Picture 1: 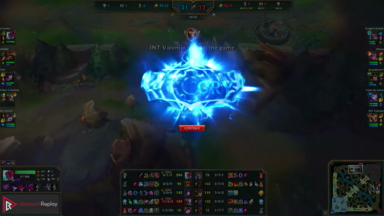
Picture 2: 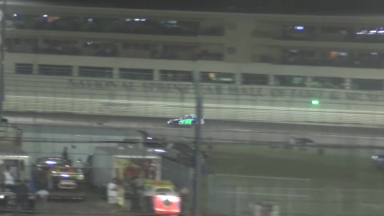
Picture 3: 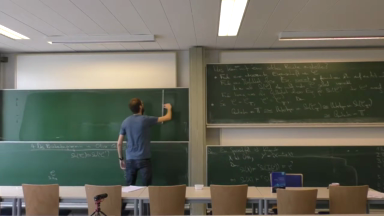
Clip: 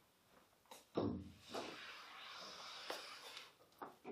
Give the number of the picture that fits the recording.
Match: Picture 3